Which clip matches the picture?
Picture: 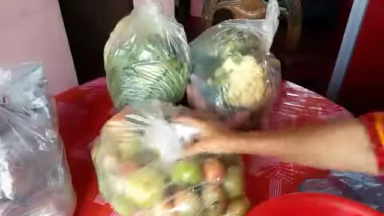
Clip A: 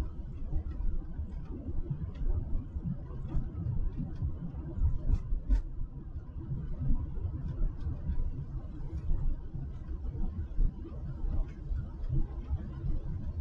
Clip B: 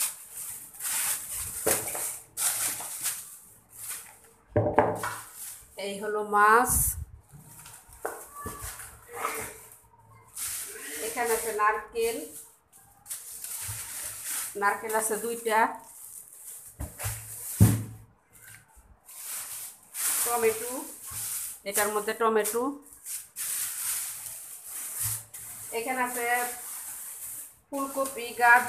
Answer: B